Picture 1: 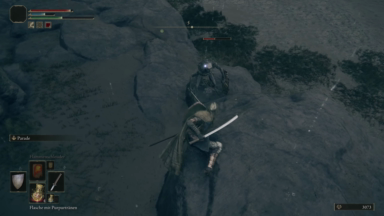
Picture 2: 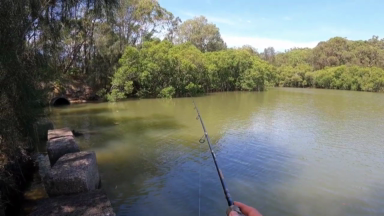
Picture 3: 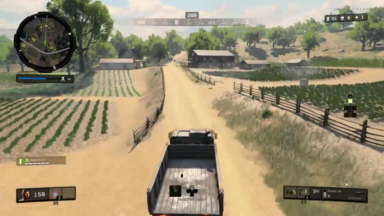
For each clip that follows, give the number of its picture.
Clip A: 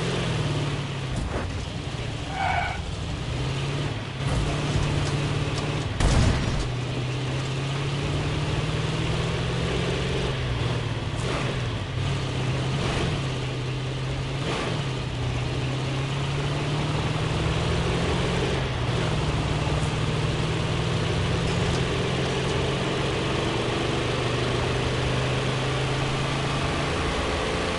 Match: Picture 3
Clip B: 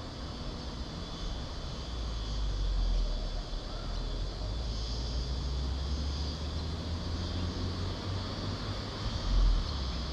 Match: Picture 2